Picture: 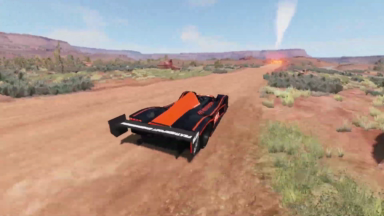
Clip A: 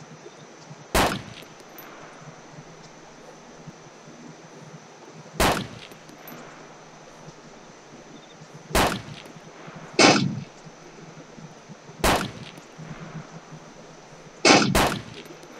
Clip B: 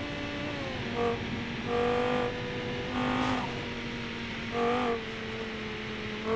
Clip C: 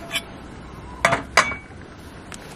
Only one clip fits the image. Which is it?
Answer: B